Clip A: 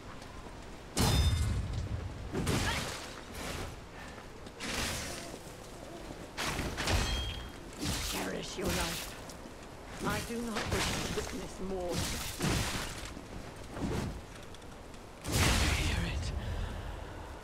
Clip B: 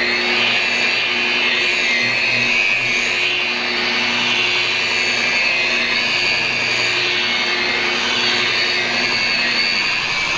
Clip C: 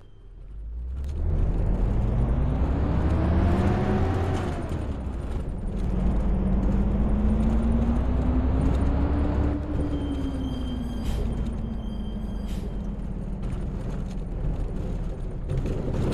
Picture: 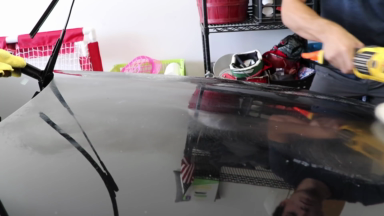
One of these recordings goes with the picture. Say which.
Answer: B